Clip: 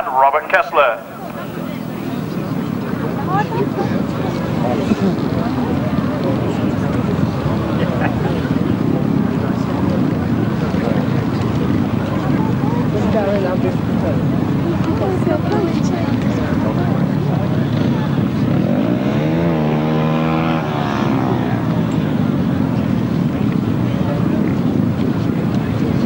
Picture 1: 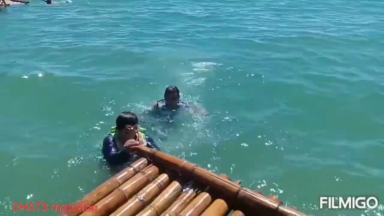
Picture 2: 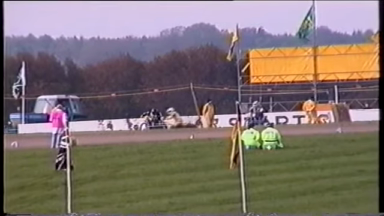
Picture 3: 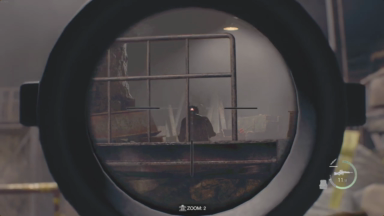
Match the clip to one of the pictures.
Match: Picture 2